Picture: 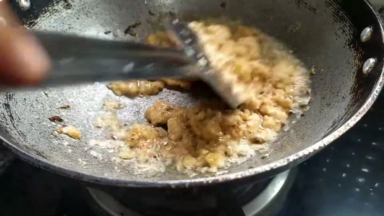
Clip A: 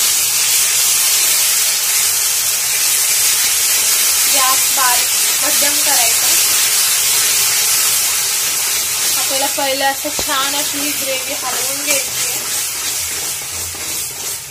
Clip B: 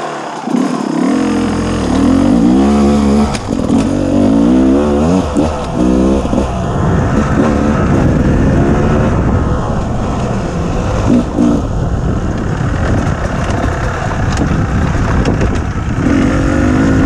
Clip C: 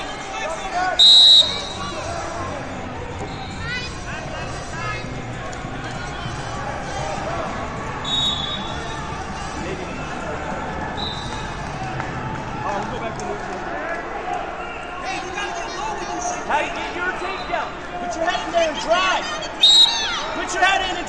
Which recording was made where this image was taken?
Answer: A